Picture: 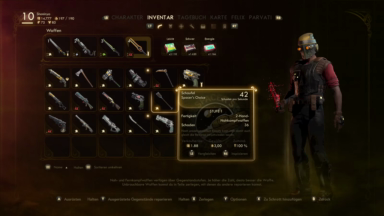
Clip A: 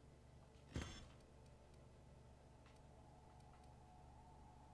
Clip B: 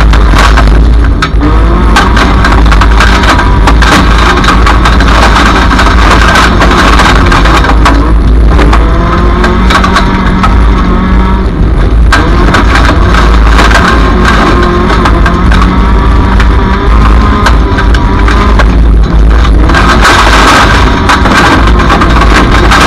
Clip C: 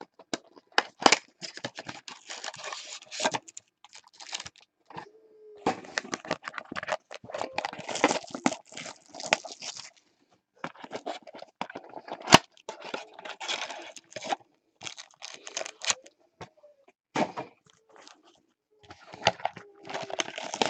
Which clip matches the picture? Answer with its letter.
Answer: A